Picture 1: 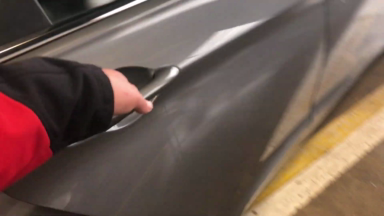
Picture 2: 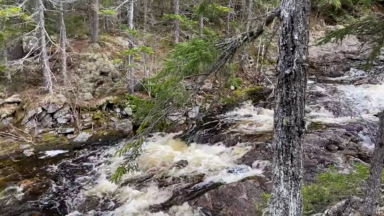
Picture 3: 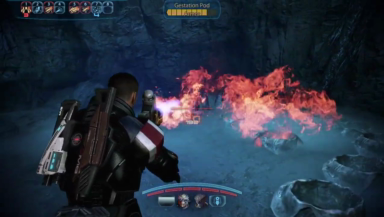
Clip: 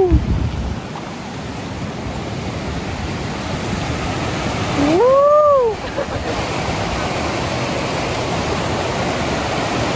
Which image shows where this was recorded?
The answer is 2